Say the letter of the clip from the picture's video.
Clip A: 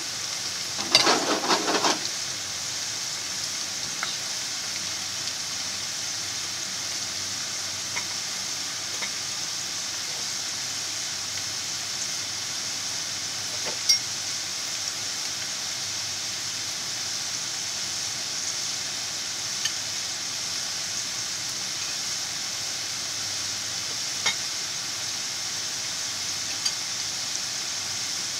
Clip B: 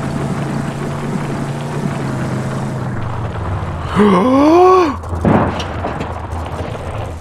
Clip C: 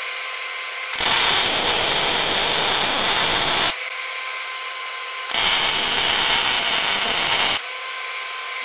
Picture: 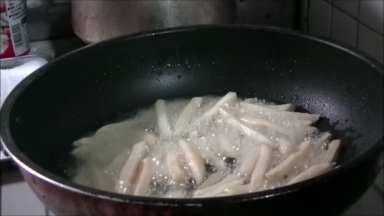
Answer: A